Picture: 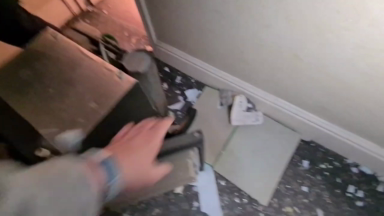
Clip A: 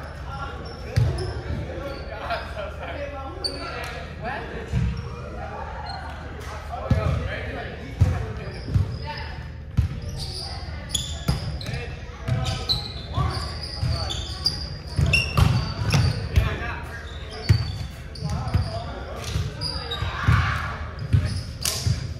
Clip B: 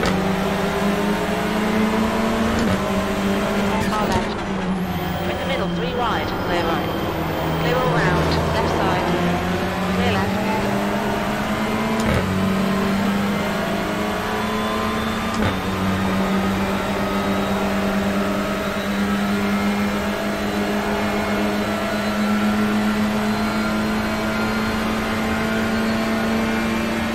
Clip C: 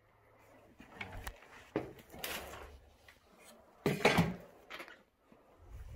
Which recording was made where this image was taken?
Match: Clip C